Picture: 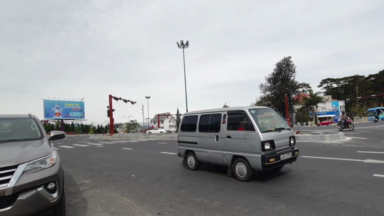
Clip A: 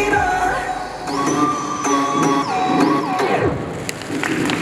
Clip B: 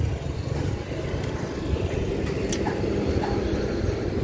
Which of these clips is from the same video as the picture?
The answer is B